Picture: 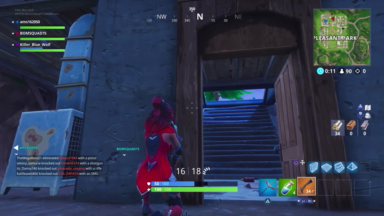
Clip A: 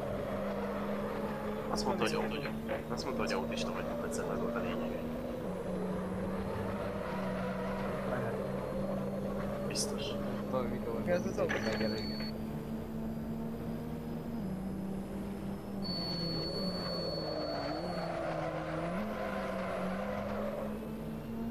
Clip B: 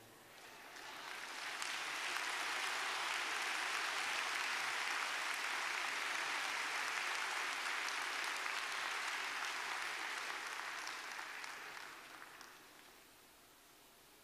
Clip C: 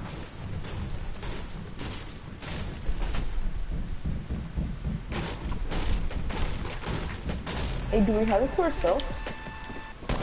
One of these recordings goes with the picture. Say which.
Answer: C